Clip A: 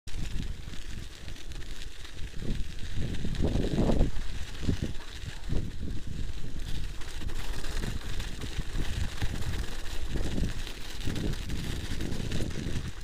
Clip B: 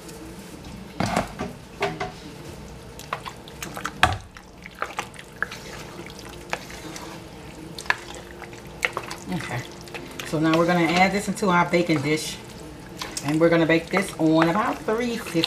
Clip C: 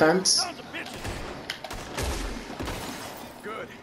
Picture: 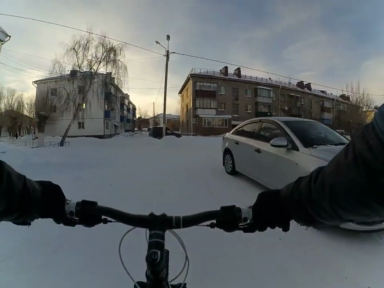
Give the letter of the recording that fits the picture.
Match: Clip A